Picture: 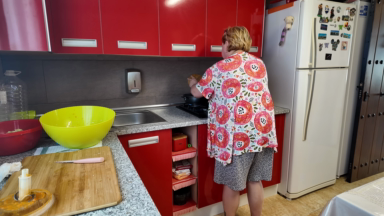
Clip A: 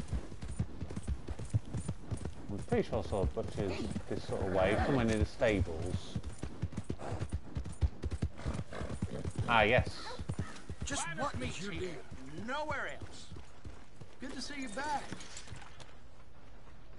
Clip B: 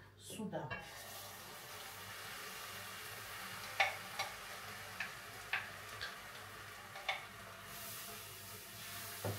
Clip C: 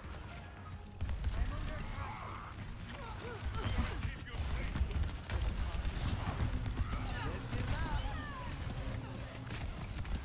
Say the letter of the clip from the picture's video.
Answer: B